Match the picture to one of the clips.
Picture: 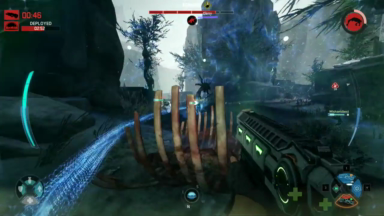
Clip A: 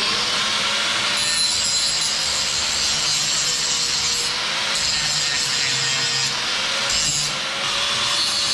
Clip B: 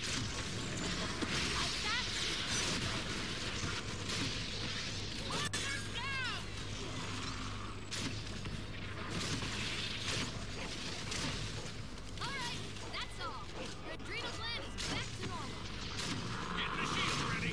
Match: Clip B